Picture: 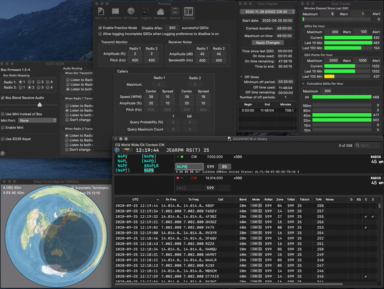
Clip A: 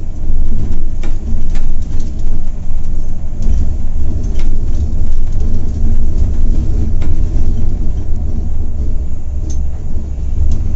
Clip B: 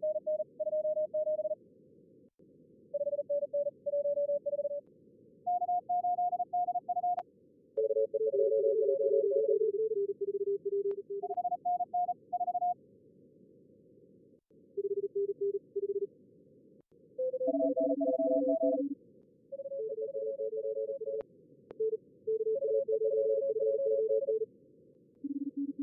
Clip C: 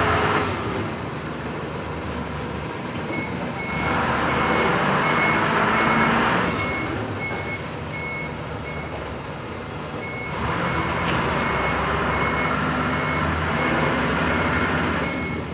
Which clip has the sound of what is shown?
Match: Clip B